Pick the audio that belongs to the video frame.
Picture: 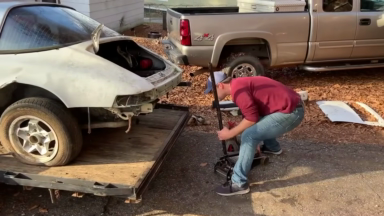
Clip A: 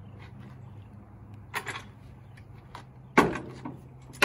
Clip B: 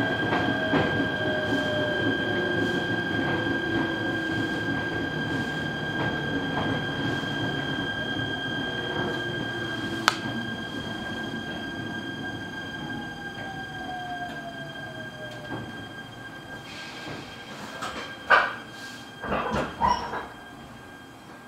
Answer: A